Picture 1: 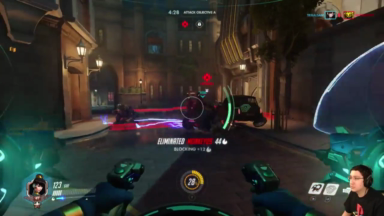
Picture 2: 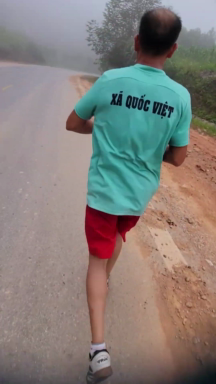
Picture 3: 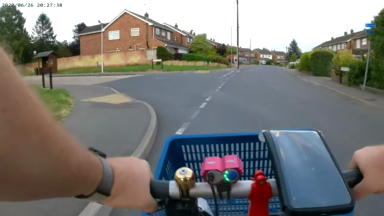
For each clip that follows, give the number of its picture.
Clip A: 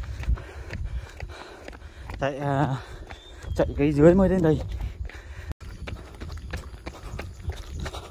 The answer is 2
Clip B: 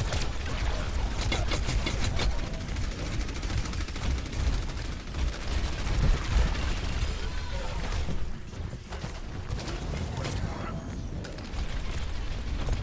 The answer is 1